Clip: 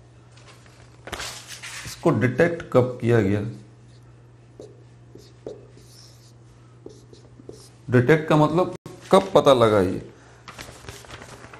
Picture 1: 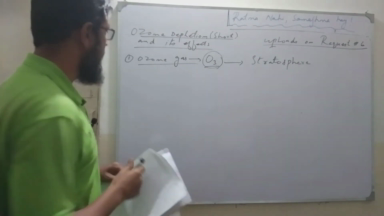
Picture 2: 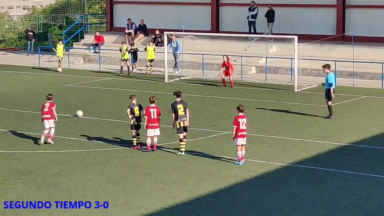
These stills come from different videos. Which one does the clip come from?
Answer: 1